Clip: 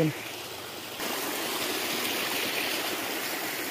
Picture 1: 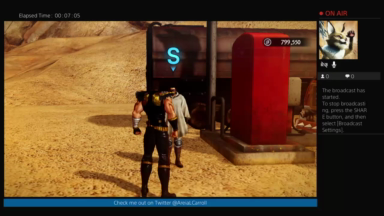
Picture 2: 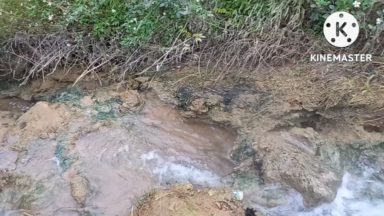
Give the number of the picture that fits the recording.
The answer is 2